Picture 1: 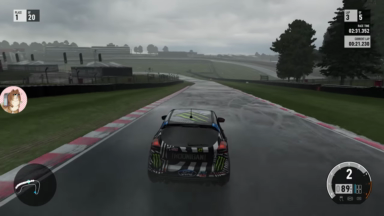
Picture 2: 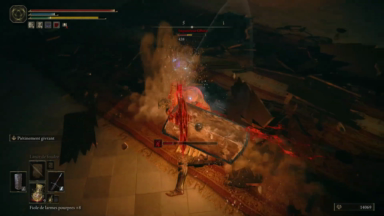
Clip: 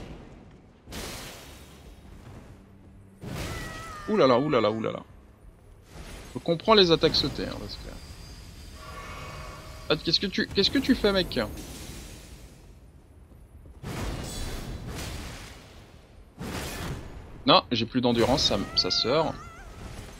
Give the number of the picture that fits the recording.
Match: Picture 2